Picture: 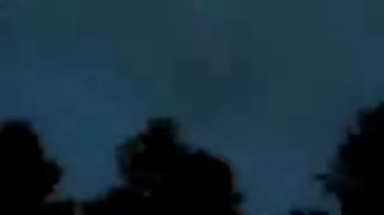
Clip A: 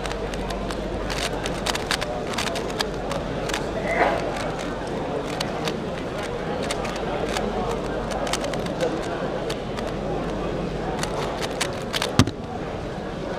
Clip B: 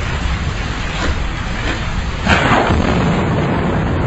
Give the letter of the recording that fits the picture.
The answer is B